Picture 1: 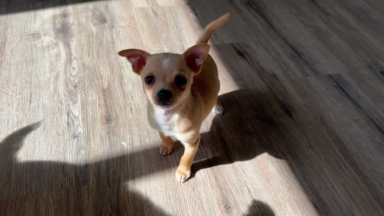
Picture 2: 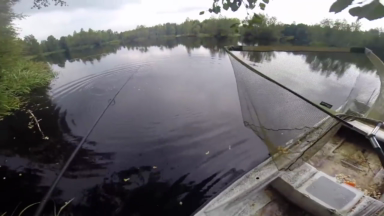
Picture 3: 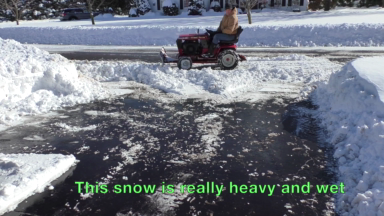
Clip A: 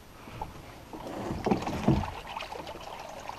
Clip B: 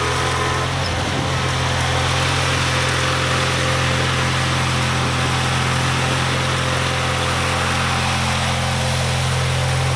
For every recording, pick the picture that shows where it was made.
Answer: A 2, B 3